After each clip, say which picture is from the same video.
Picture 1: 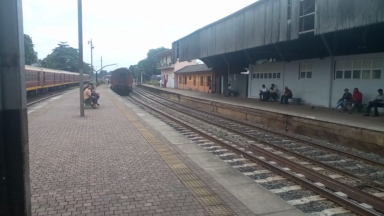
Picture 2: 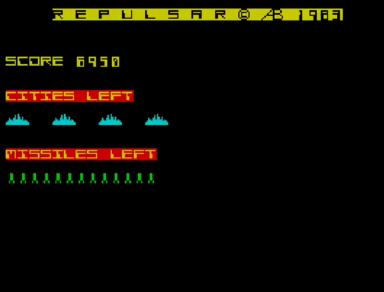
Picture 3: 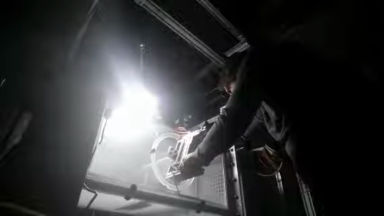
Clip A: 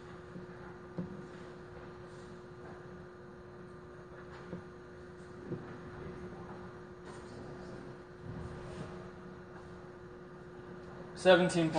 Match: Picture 3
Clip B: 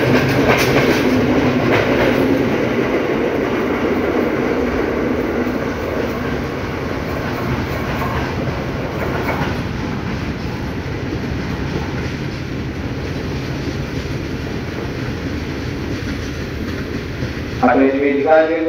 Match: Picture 1